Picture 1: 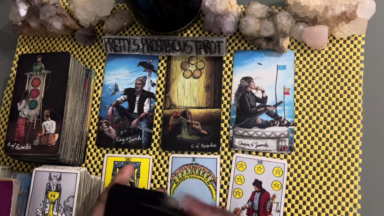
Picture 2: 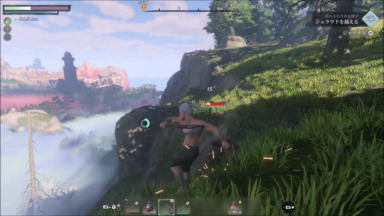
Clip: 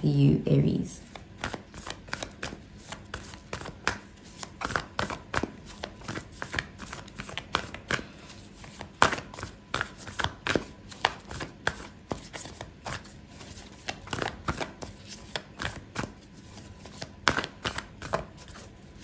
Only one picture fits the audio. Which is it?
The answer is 1